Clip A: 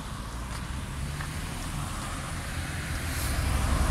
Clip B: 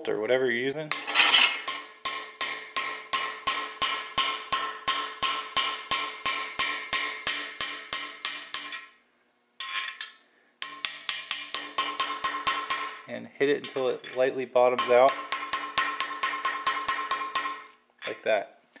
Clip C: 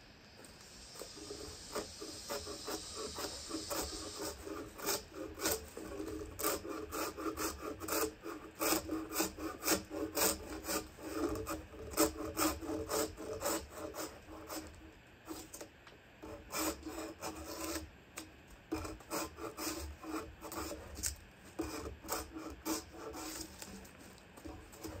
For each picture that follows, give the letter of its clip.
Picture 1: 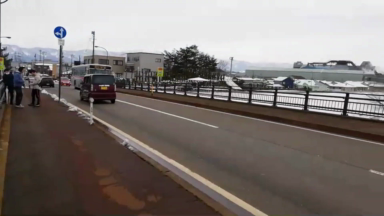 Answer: A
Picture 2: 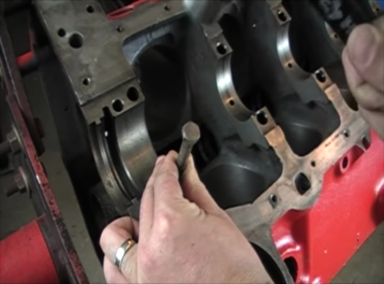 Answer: B